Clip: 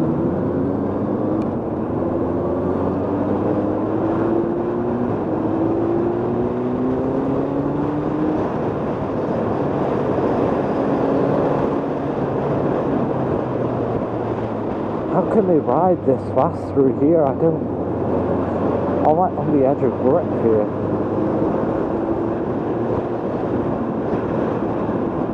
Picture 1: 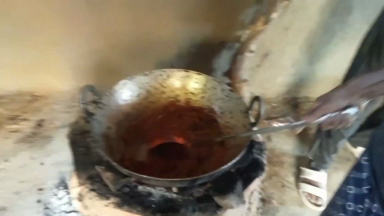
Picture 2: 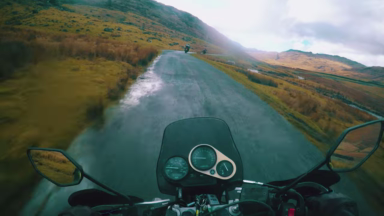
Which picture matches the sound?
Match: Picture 2